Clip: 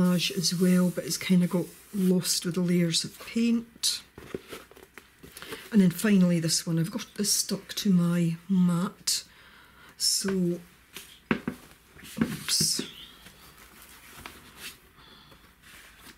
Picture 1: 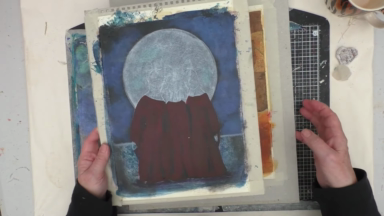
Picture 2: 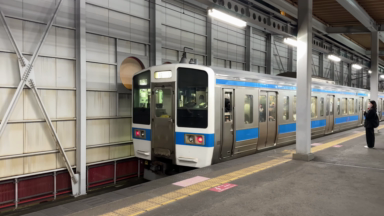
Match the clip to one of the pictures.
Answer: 1